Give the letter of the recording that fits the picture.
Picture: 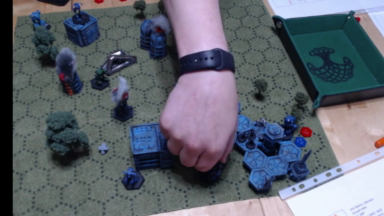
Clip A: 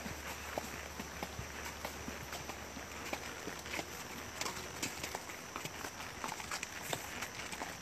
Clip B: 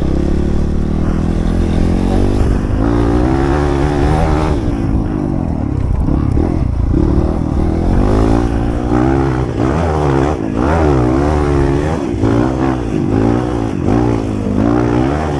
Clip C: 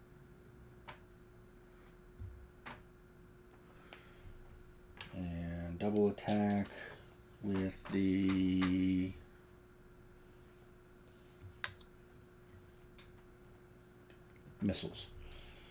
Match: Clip C